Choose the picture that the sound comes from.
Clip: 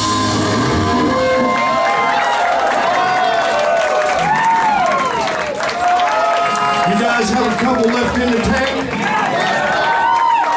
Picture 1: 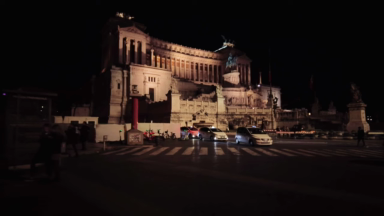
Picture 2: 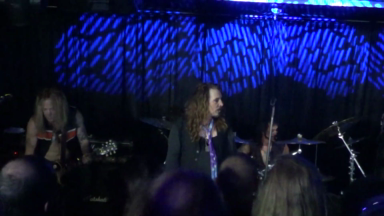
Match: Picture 2